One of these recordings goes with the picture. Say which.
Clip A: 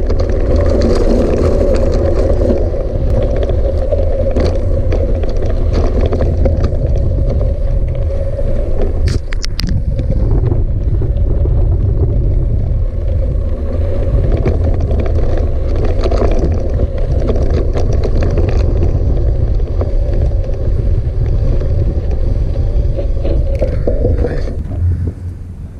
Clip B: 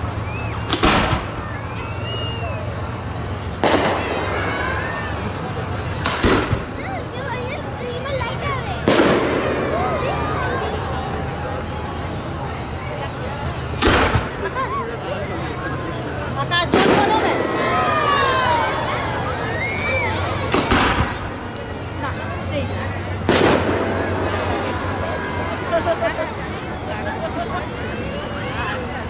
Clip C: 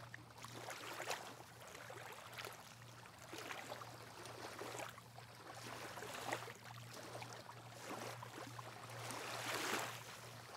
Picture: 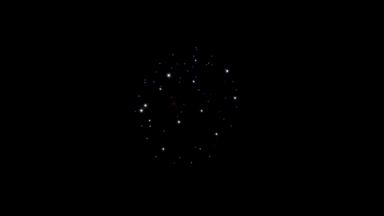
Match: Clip B